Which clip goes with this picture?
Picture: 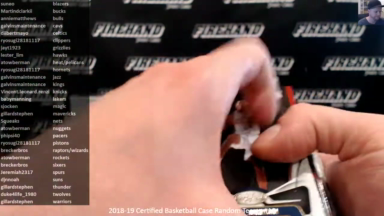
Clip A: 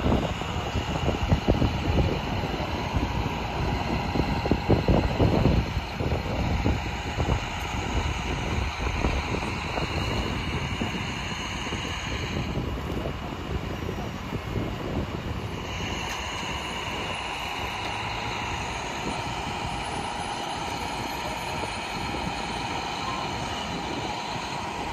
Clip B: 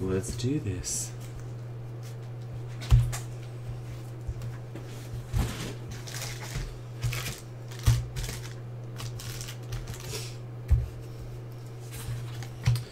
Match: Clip B